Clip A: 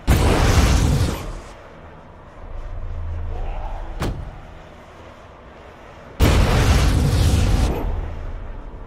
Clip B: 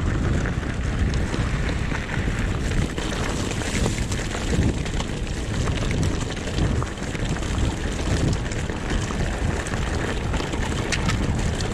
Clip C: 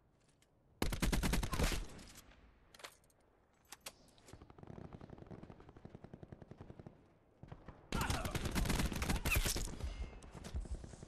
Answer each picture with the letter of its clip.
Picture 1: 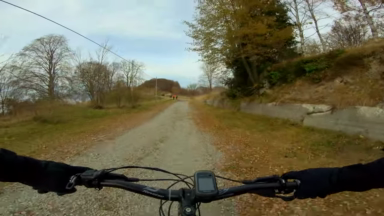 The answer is B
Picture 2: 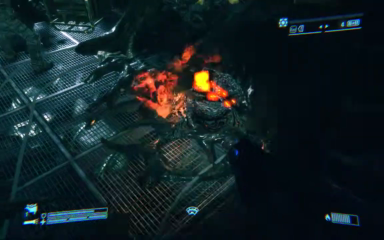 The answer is A